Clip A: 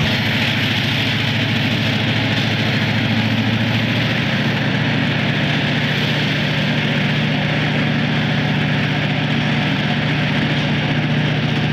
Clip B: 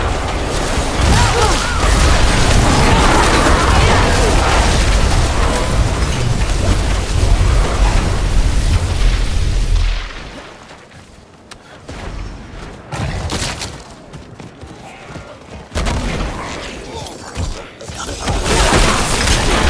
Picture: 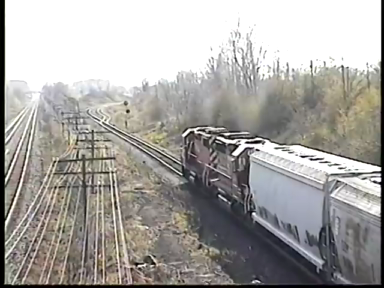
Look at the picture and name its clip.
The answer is A